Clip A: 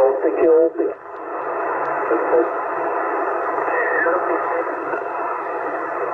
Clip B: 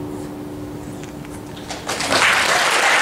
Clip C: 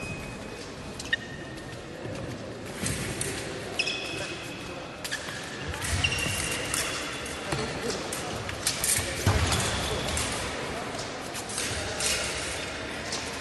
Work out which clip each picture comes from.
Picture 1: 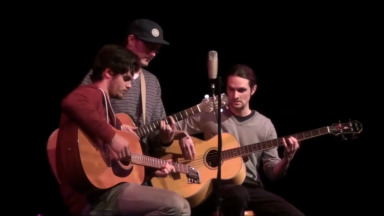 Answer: B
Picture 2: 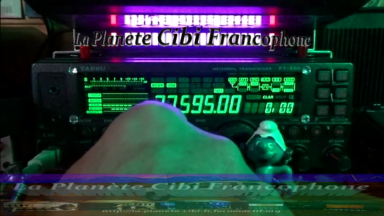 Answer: A